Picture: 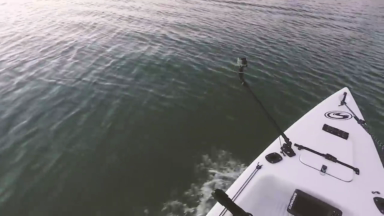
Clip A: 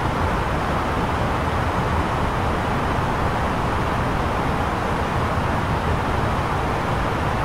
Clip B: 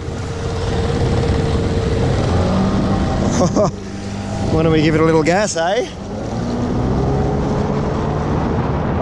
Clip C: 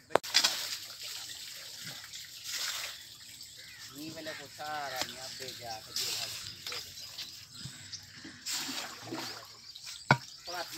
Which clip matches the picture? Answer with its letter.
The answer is B